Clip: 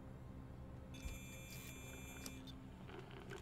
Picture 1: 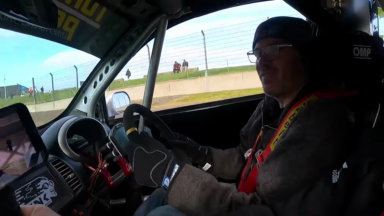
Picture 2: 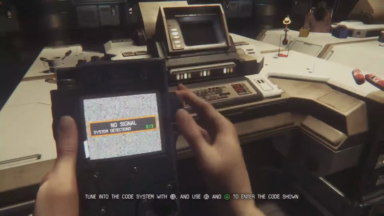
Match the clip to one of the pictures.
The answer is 2